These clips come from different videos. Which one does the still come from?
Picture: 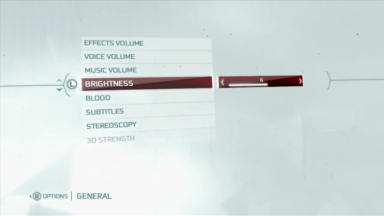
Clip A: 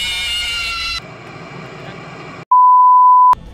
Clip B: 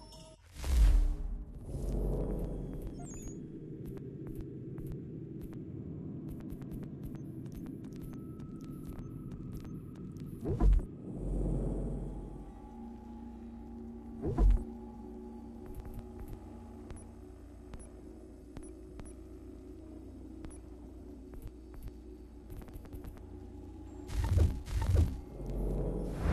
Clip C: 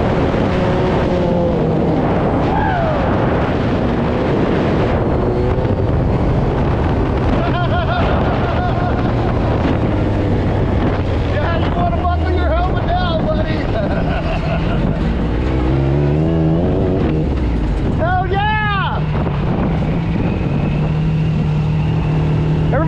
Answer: B